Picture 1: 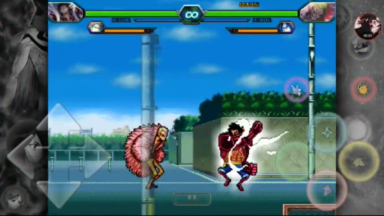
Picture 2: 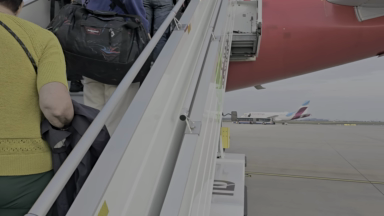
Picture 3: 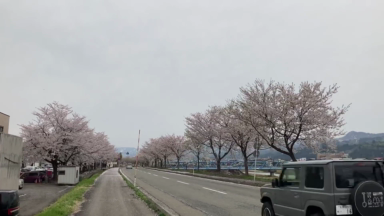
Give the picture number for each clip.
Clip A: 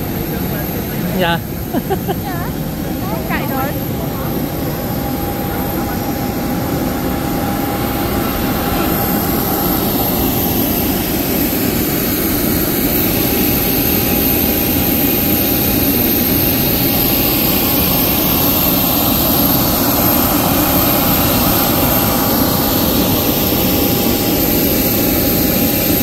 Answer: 2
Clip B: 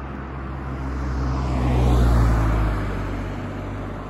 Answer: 3